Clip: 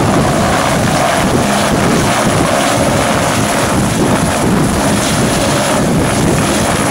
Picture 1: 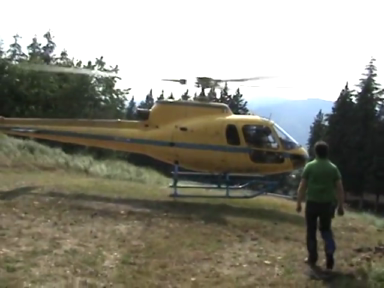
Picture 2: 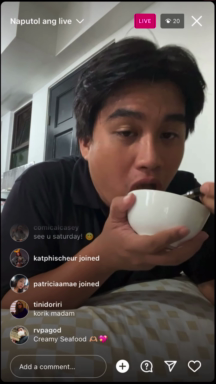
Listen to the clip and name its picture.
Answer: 1